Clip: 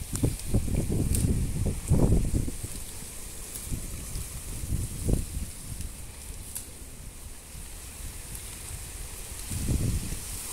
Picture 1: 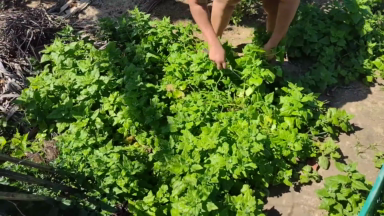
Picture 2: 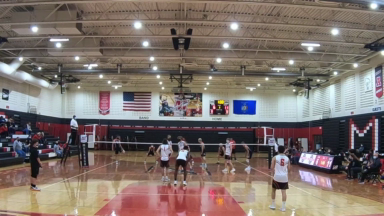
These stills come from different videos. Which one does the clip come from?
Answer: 1